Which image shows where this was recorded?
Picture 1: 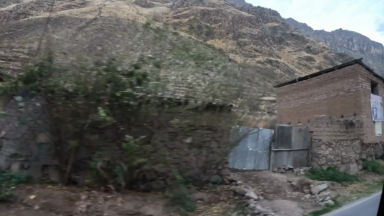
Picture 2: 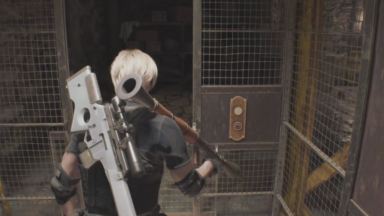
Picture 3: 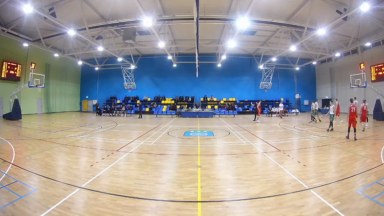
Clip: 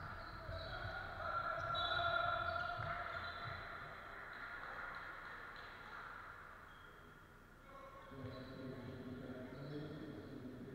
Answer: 3